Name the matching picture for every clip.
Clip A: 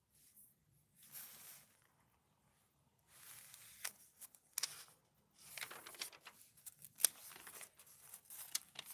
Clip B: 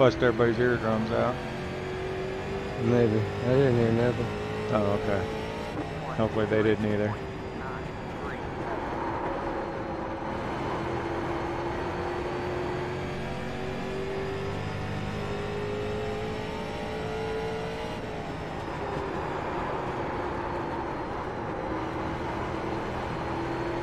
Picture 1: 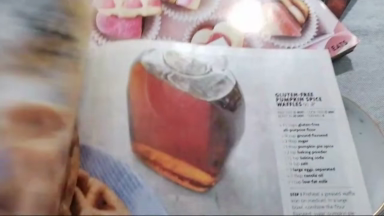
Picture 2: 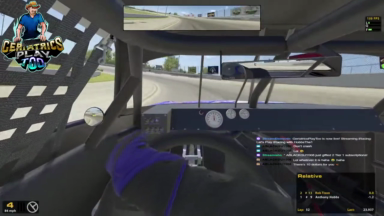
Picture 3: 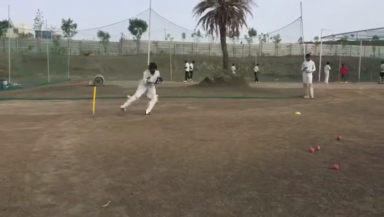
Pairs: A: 1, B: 2